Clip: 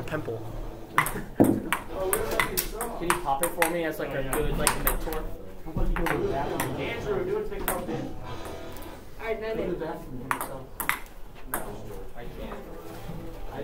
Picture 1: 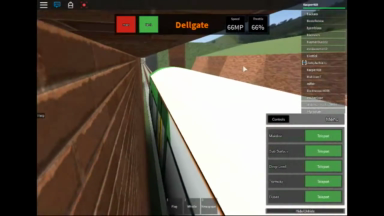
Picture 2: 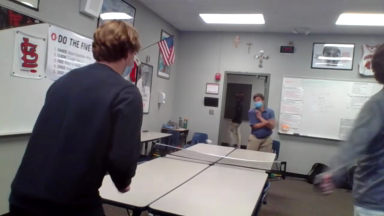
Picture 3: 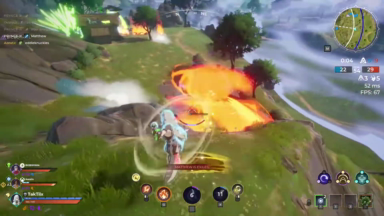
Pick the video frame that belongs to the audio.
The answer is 2